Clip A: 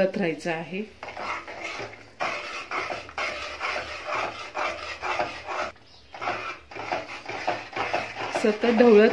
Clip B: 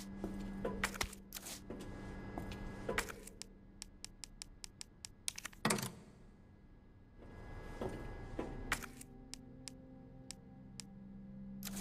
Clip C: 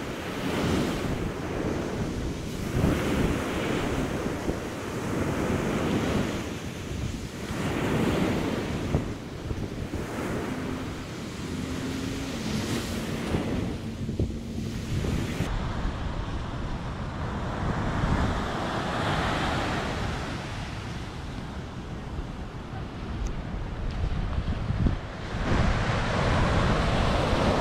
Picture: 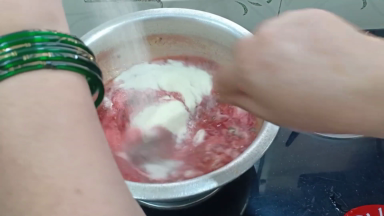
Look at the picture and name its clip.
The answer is A